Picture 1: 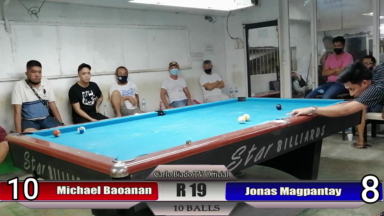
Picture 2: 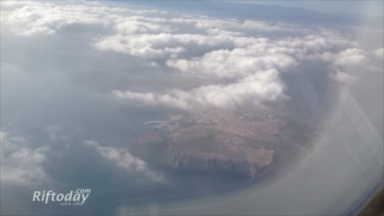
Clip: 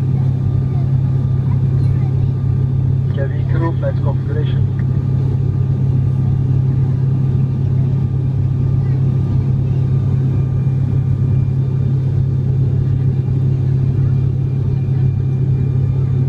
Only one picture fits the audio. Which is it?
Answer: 2